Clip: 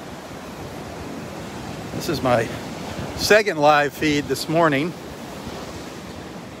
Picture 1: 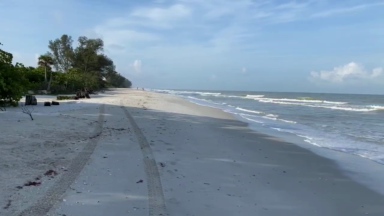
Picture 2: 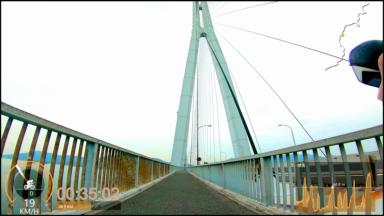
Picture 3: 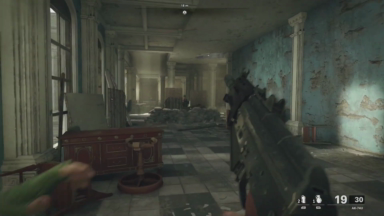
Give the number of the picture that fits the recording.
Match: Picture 1